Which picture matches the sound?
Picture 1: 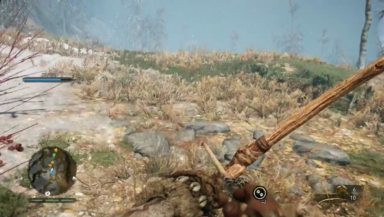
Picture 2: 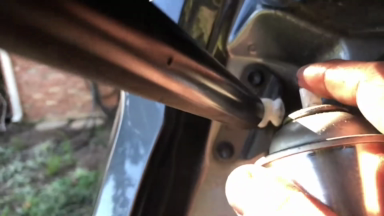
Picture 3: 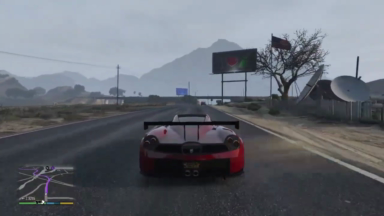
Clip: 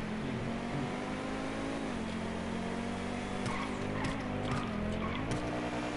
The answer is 3